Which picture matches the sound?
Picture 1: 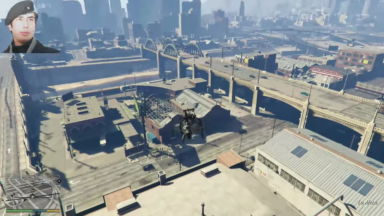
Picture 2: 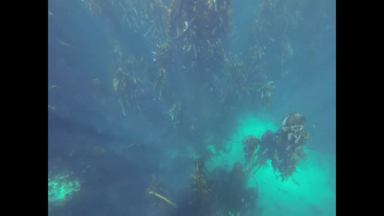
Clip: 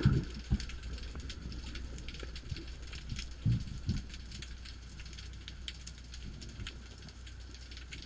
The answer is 2